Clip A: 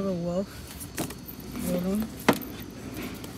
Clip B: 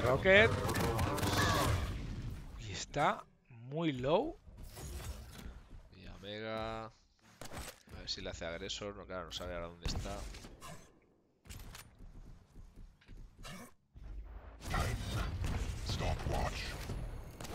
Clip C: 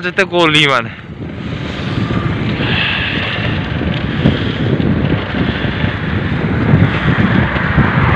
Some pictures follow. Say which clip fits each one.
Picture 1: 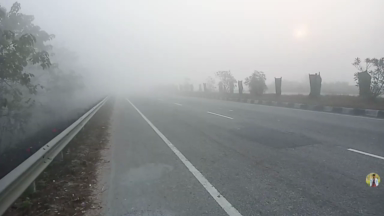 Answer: C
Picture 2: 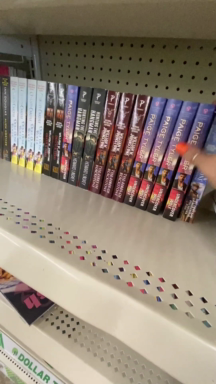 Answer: A